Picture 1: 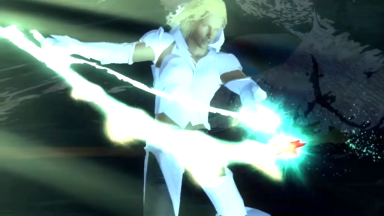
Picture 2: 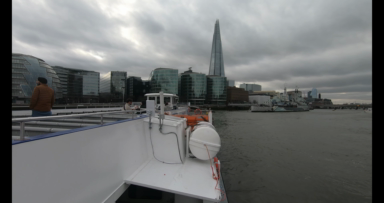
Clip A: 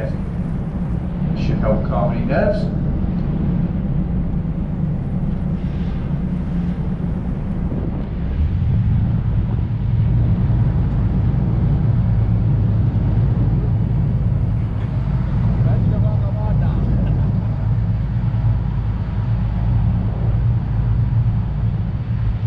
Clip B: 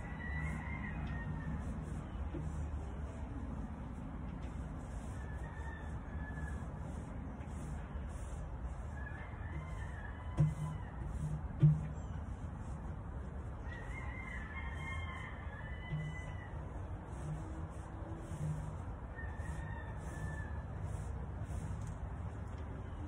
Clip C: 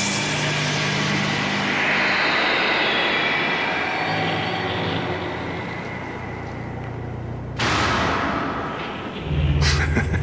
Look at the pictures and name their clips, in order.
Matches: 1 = C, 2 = A